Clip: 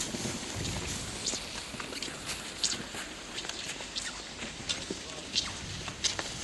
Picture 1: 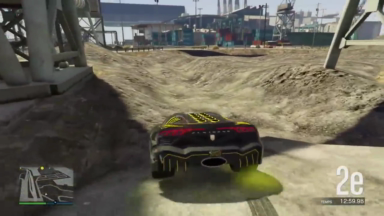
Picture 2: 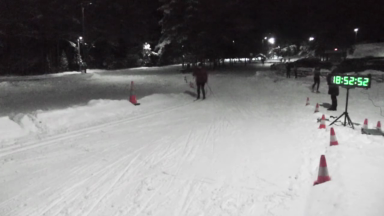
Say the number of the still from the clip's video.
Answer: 2